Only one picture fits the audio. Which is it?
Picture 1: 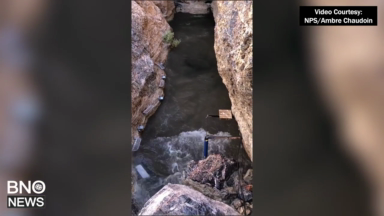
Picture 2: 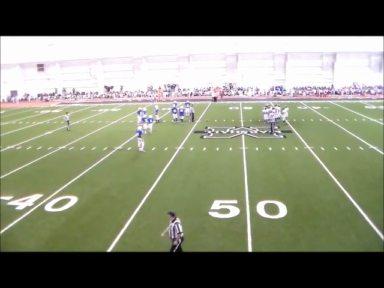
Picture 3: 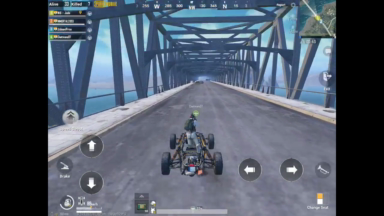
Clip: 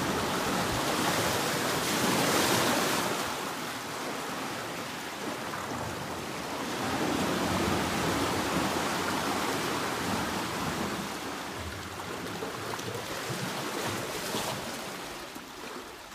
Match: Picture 1